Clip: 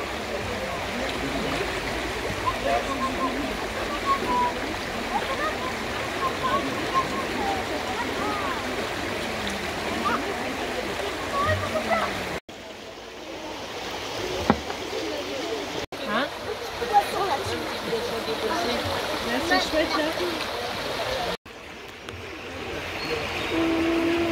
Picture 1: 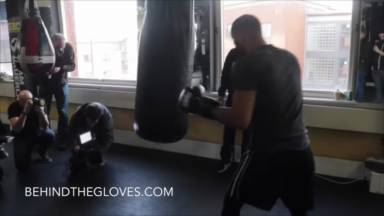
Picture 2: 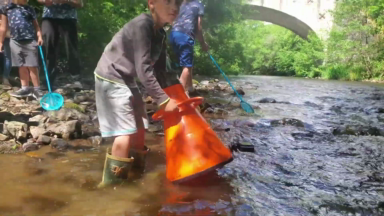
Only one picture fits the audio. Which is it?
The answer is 2